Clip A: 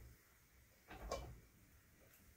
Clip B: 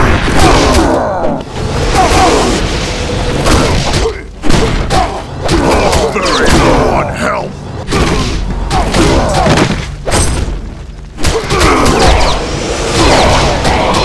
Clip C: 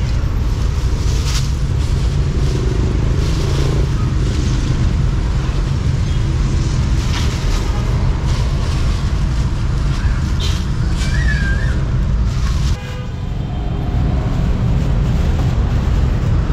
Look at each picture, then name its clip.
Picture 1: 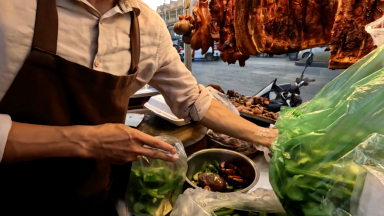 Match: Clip C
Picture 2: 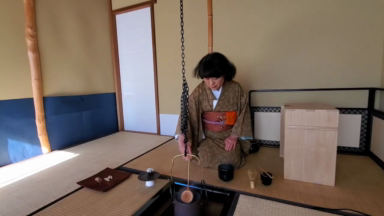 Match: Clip A